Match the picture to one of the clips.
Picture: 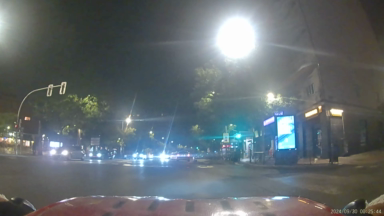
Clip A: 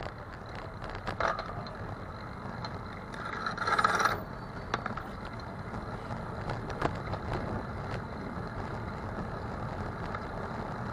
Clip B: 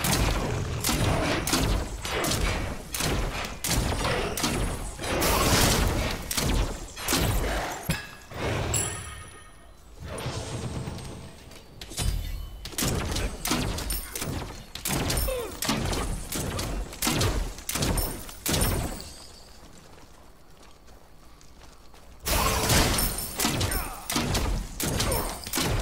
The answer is A